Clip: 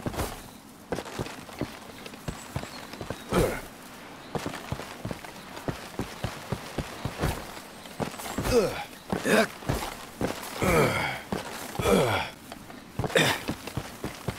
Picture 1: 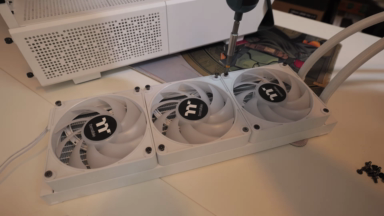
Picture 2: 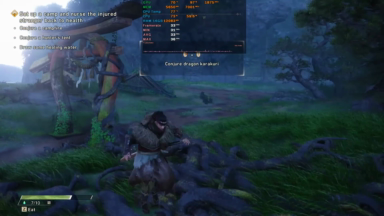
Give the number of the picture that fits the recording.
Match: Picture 2